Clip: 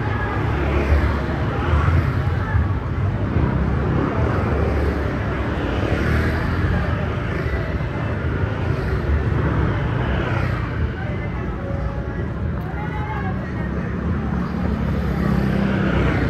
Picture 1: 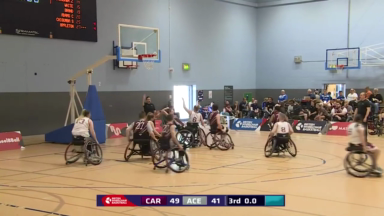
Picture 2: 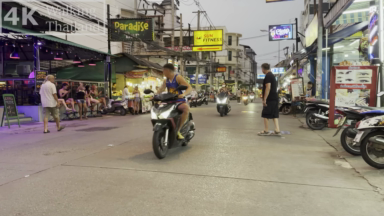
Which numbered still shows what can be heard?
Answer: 2